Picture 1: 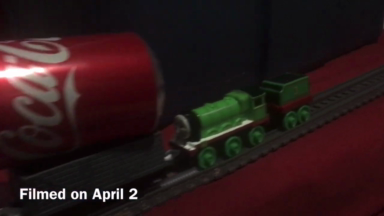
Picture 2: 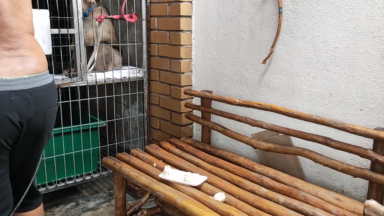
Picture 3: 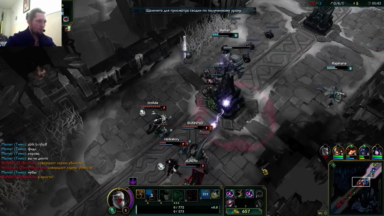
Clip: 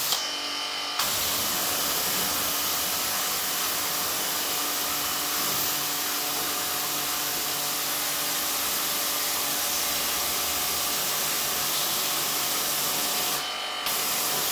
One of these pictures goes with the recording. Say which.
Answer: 2